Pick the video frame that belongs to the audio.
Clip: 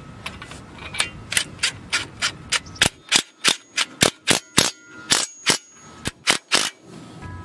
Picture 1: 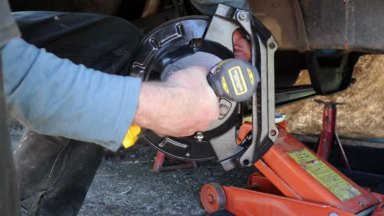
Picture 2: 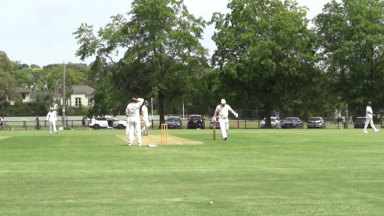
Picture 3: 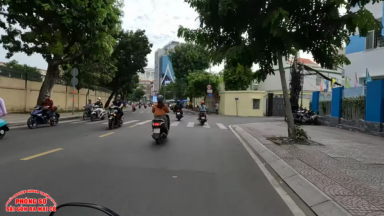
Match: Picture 1